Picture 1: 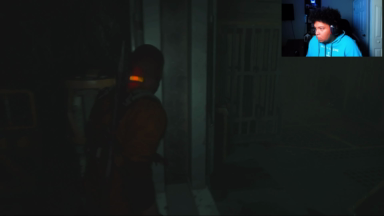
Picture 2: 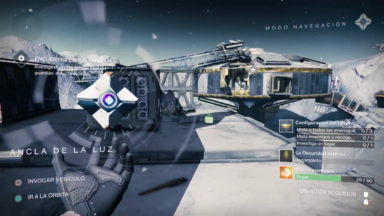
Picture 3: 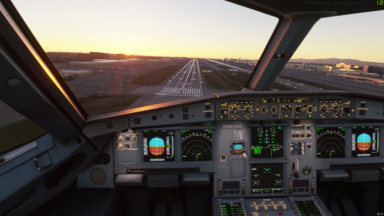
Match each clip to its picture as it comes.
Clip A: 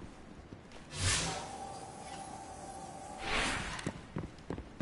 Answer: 2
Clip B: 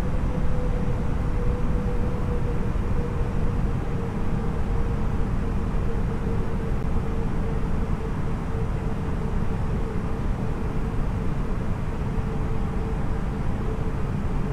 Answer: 3